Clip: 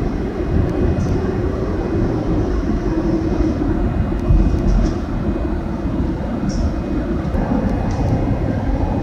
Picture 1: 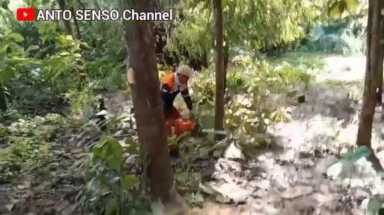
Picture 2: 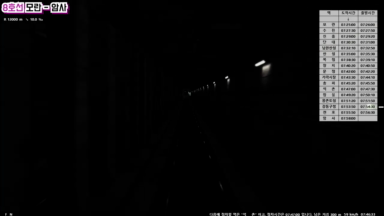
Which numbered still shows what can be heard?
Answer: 2